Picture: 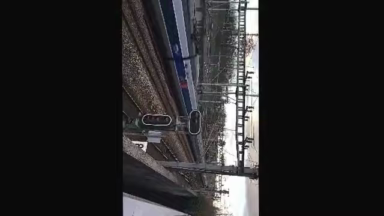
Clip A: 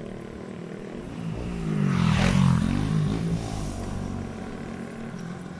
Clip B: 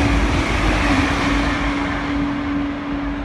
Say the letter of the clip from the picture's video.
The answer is B